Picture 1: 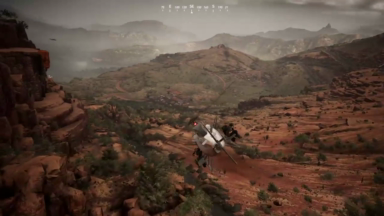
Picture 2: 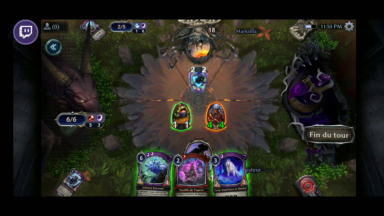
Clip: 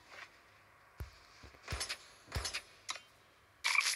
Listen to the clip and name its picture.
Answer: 2